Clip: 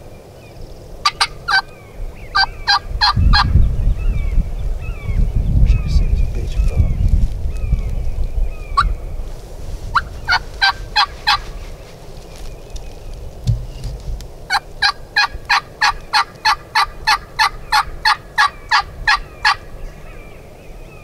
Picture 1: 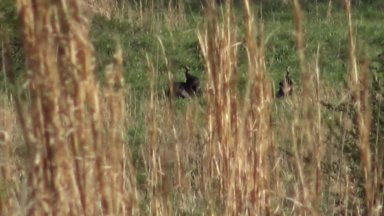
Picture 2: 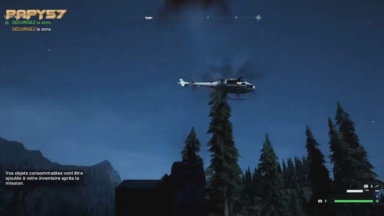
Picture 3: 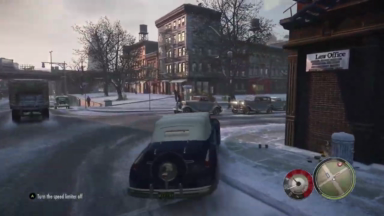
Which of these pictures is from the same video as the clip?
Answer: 1